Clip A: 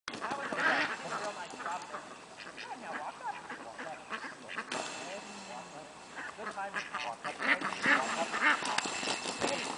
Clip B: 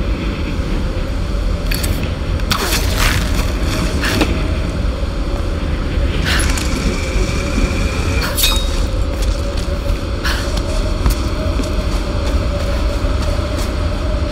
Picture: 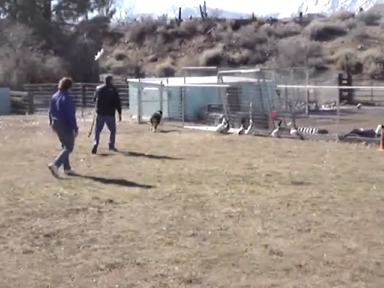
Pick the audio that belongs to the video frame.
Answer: A